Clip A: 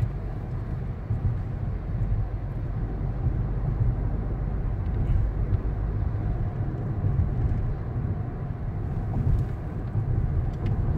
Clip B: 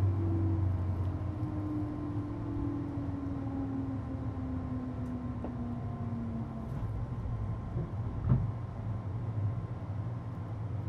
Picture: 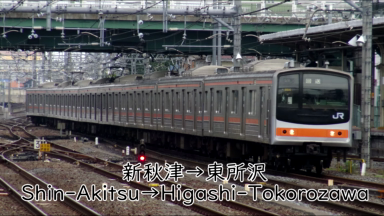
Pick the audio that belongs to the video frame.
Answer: B